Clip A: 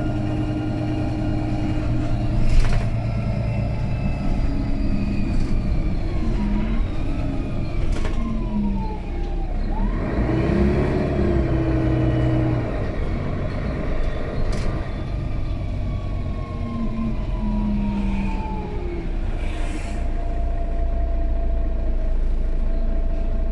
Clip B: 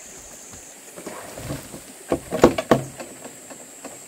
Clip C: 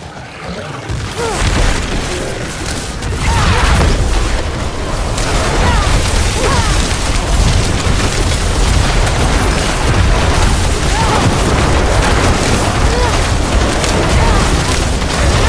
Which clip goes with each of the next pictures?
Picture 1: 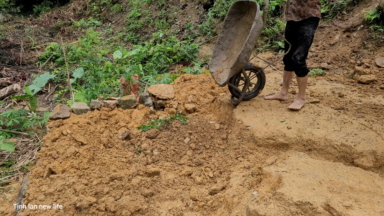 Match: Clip B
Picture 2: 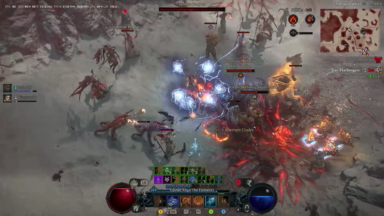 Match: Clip C